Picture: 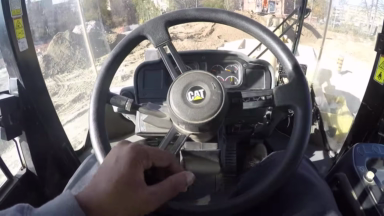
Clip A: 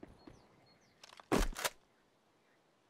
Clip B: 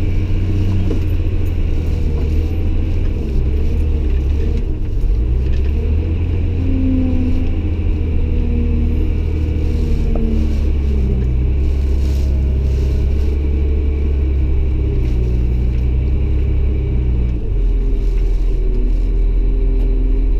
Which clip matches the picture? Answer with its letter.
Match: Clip B